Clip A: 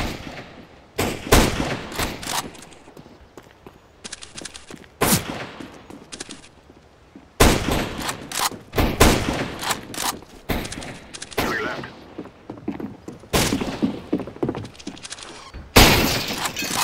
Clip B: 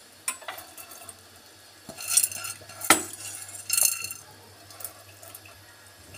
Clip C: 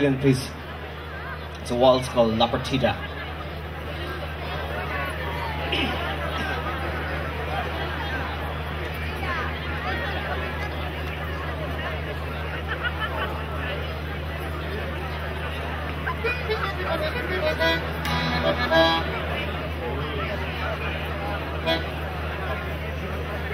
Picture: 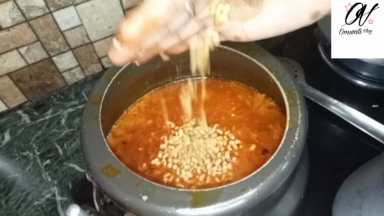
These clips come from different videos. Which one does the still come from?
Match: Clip B